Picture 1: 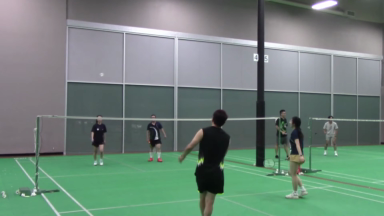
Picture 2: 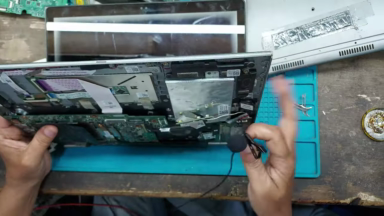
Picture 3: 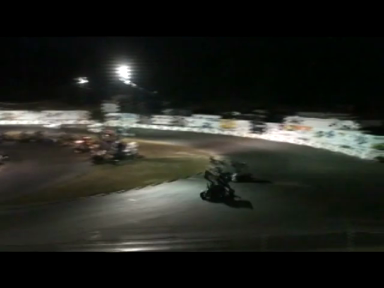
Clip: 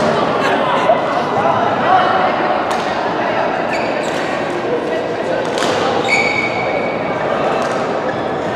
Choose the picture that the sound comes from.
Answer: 1